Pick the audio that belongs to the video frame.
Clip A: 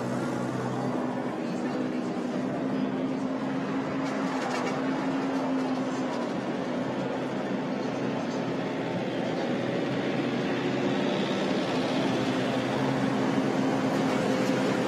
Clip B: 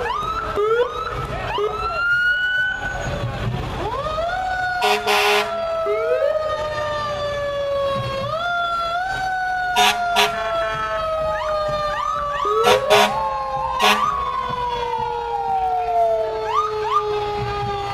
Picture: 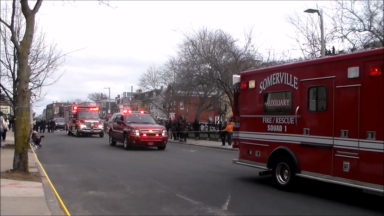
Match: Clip B